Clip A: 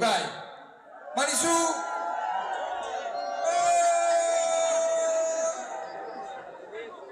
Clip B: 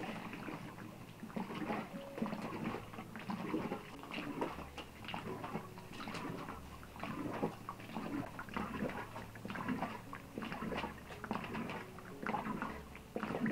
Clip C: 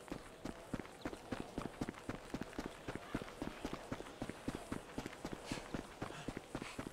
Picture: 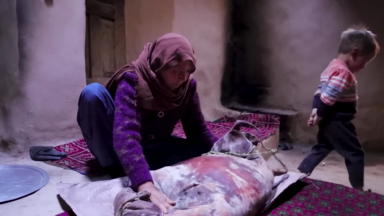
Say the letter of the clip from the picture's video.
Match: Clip B